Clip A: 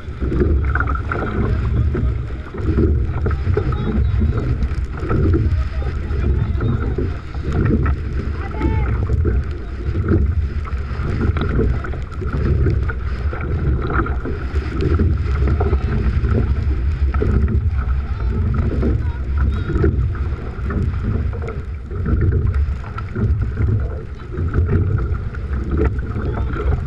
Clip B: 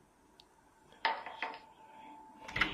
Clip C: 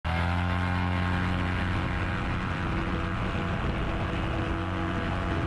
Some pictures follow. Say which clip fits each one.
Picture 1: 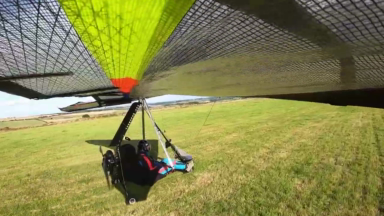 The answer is C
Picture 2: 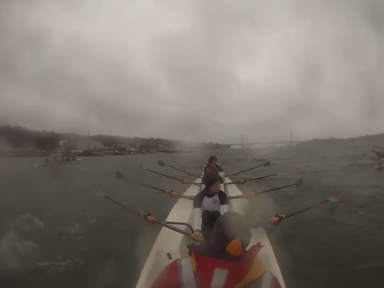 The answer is A